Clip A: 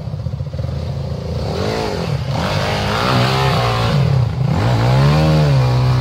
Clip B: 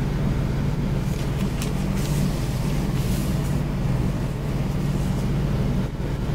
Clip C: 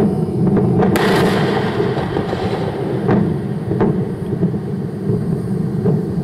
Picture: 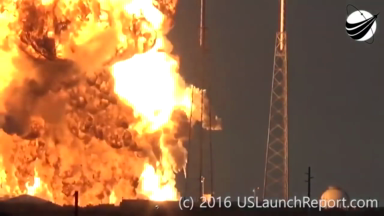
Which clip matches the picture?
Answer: C